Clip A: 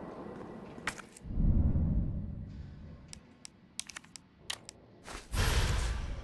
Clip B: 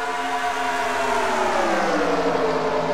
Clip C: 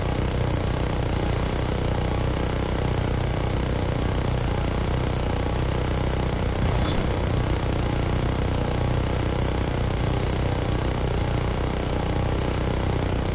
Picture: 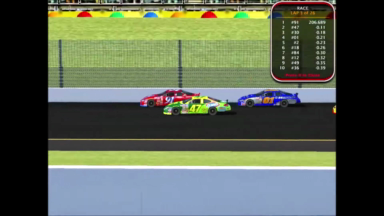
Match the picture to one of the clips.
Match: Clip B